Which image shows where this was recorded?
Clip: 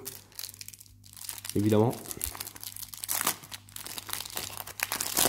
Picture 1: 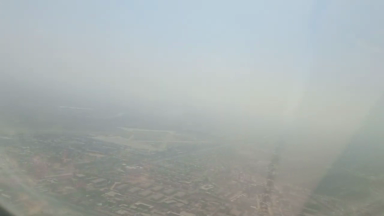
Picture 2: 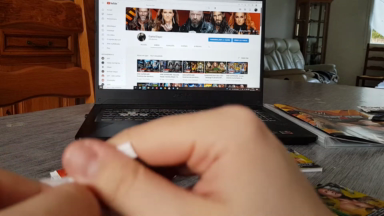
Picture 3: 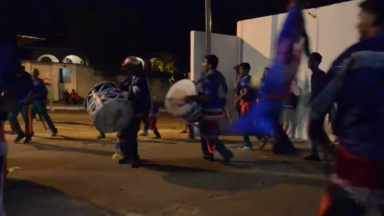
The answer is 2